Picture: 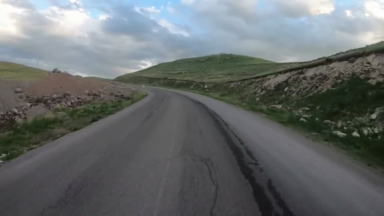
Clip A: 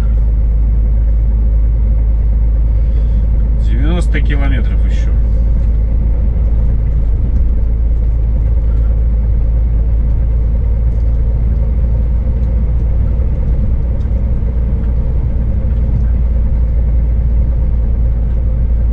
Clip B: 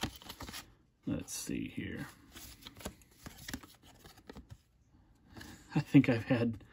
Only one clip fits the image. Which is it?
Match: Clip A